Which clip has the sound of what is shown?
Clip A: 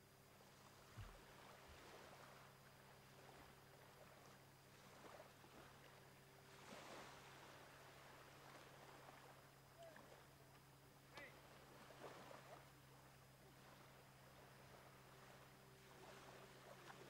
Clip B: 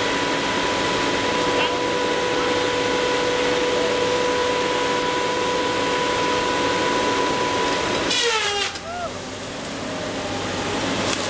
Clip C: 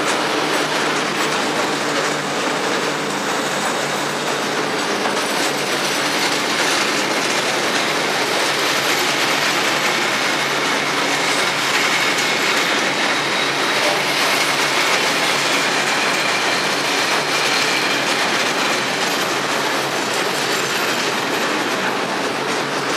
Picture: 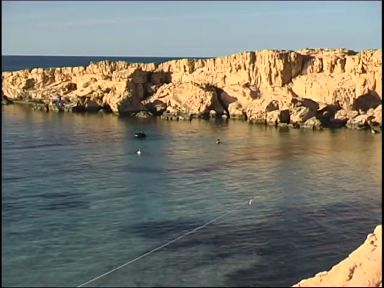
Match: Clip A